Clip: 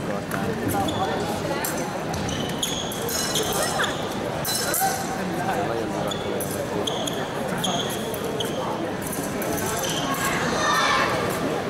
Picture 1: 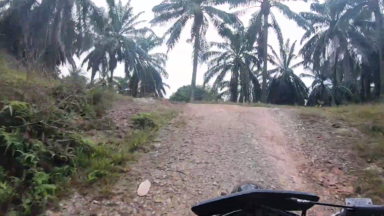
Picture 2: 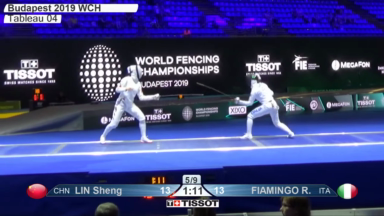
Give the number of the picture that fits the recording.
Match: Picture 2